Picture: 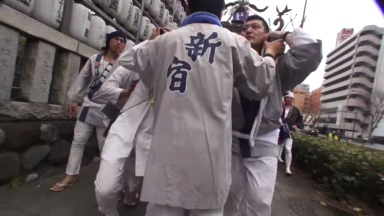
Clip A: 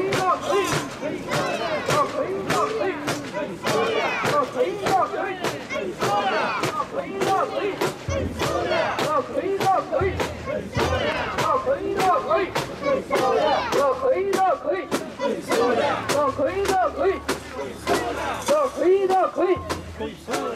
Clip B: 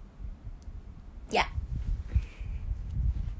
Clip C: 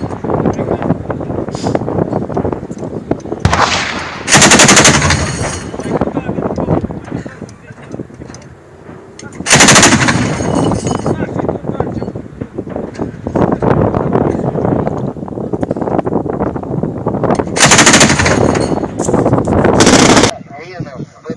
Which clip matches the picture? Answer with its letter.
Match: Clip A